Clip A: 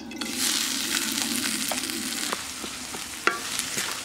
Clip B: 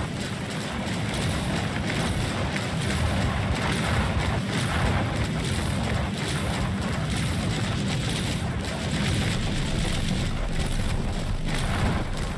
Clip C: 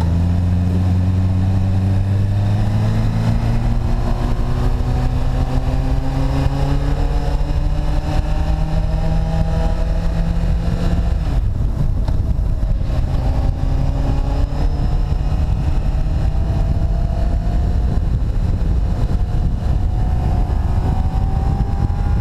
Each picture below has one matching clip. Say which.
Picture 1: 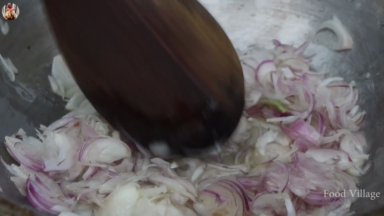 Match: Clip A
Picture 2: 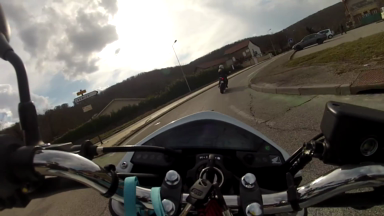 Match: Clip C